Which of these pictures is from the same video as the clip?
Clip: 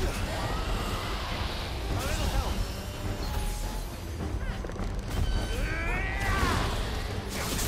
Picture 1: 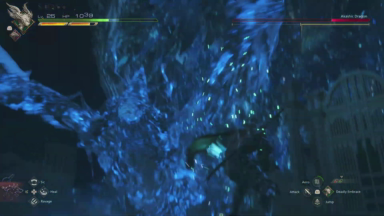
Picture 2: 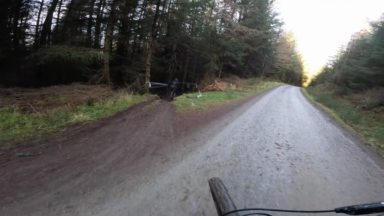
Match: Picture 1